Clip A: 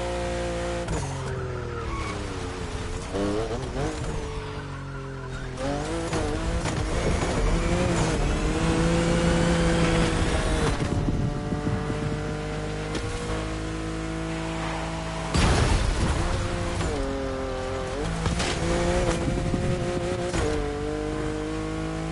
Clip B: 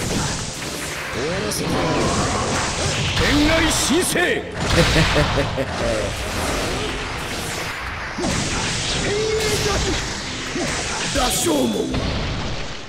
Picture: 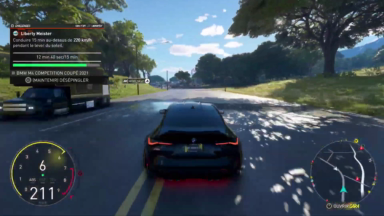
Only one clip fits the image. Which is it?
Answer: A